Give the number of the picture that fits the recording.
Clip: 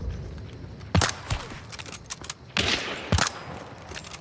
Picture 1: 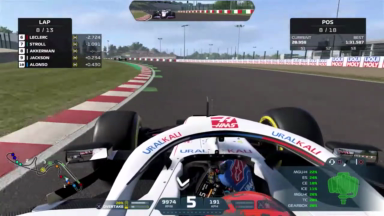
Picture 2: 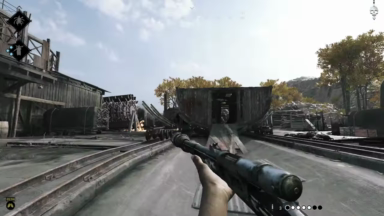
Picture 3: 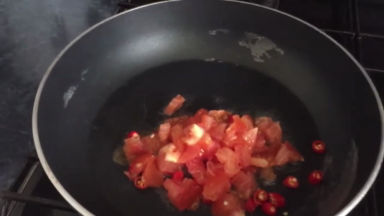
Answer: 2